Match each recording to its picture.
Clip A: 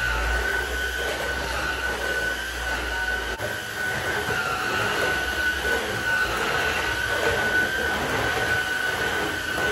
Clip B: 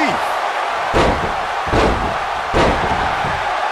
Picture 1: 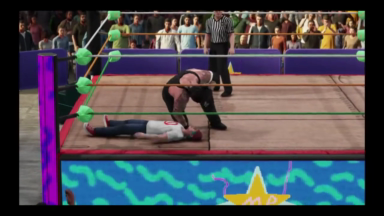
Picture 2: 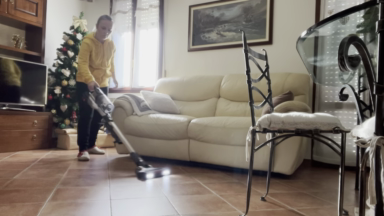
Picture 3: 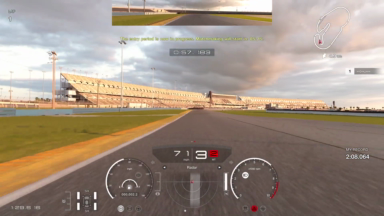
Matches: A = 2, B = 1